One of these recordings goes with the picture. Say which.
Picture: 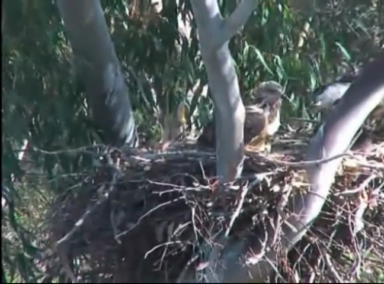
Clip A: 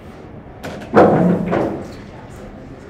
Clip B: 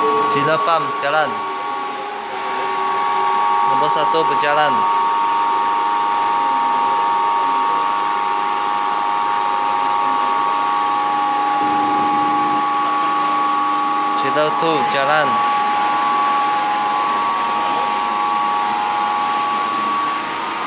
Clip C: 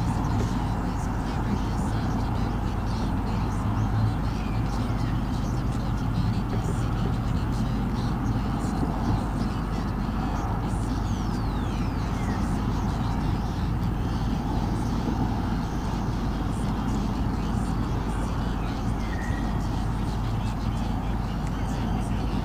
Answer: C